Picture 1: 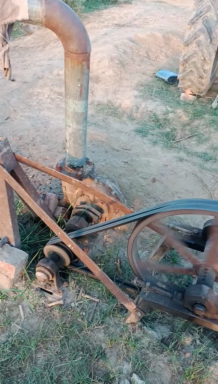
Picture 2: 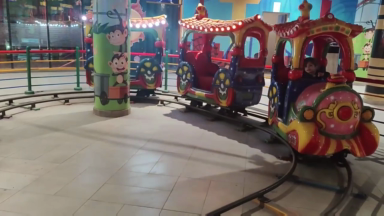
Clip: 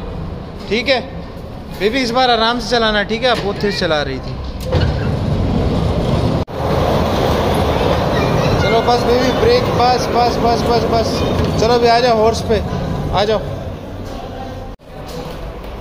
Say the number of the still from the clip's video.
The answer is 2